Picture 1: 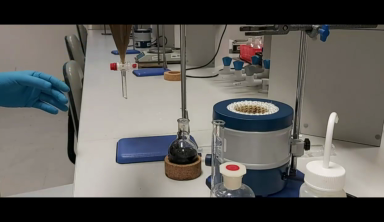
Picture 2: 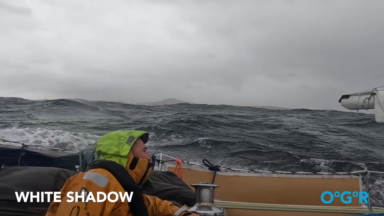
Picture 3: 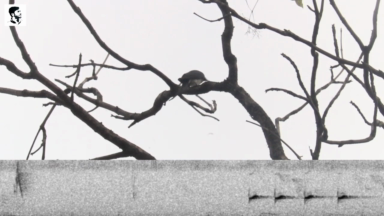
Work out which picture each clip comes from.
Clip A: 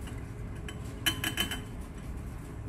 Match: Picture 1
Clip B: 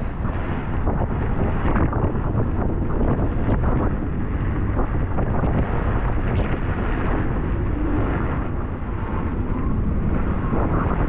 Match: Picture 2